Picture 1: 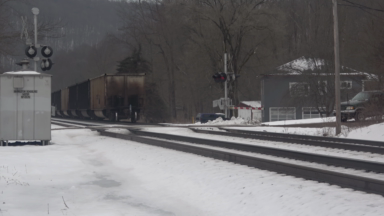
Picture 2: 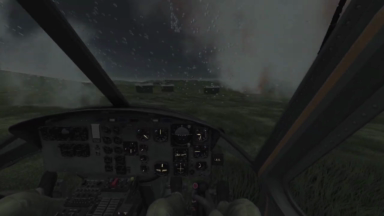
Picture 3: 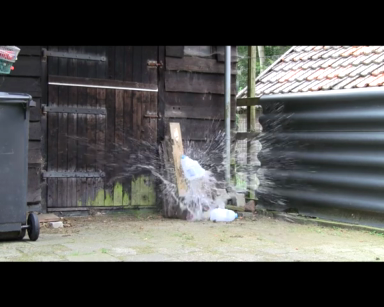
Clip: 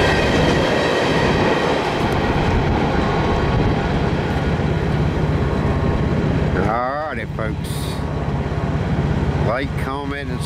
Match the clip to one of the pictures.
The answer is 1